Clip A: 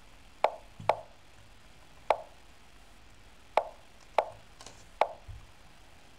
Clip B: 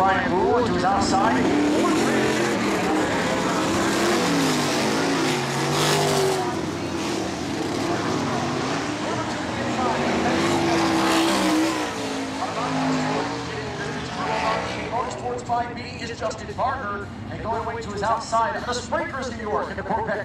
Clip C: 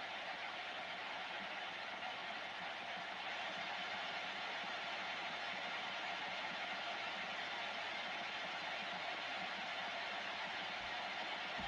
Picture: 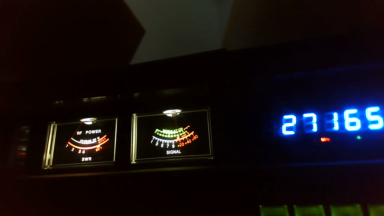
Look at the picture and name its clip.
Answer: C